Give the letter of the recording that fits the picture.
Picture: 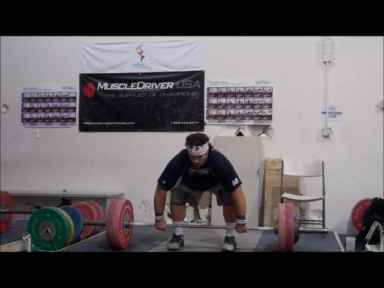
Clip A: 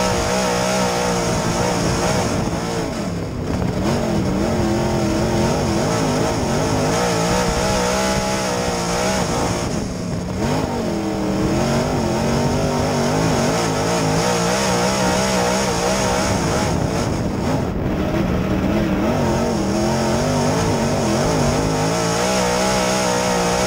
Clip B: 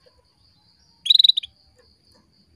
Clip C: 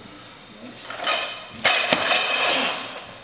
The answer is C